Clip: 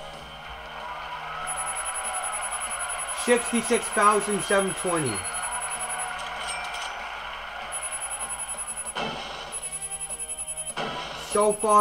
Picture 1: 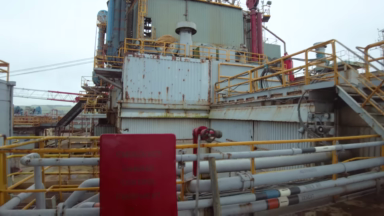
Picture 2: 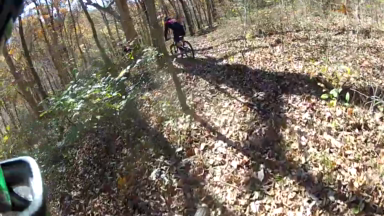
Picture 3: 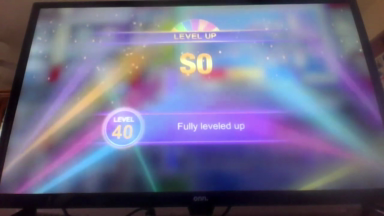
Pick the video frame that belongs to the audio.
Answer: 3